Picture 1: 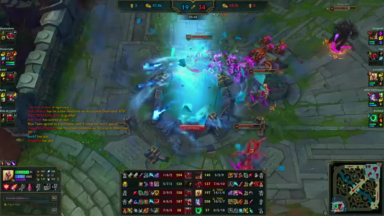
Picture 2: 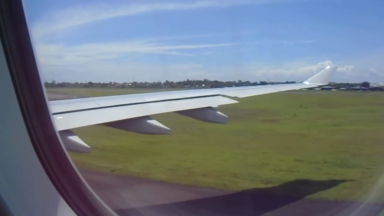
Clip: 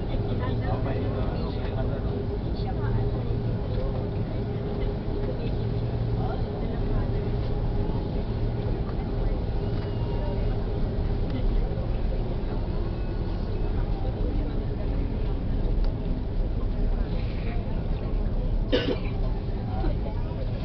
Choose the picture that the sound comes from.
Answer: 2